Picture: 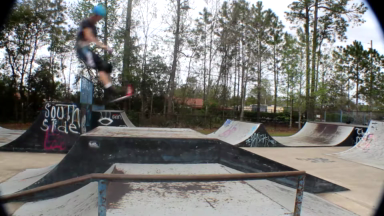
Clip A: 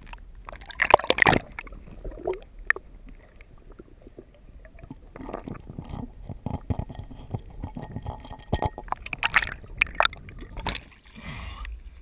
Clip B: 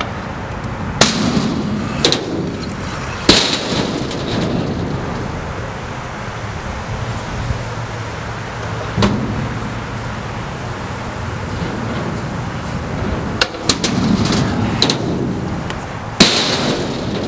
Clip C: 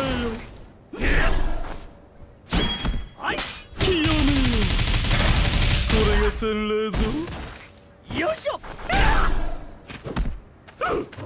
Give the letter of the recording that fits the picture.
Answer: B